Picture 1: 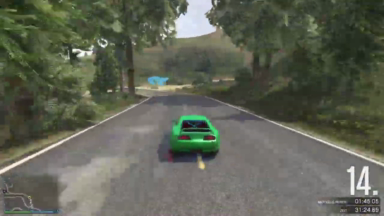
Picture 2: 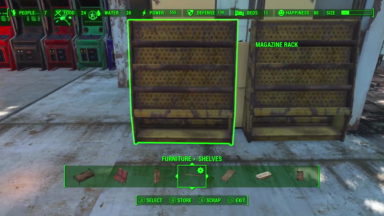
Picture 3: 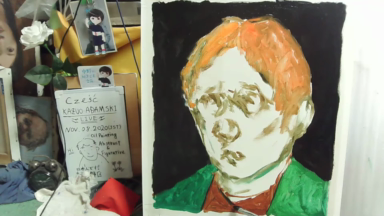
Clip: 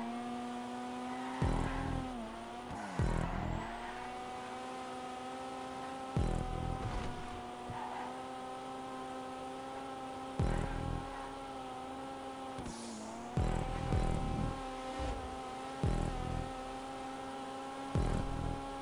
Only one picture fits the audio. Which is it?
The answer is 1